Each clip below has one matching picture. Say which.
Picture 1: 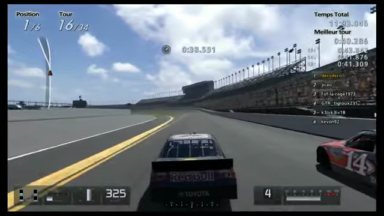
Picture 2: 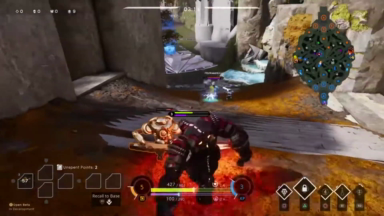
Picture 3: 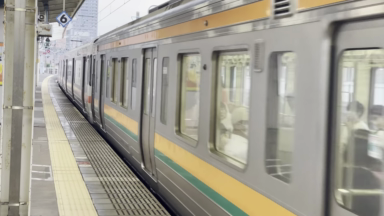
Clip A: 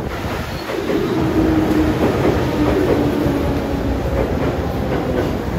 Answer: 3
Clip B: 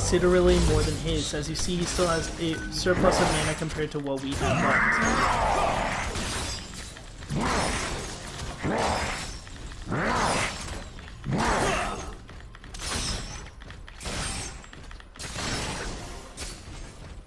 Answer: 2